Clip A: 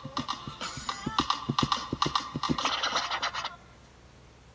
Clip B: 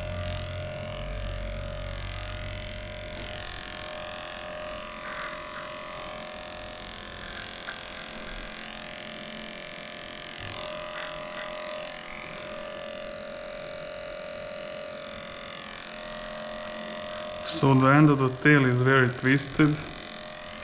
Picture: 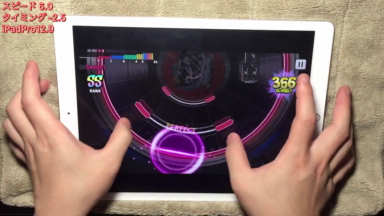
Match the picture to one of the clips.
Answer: A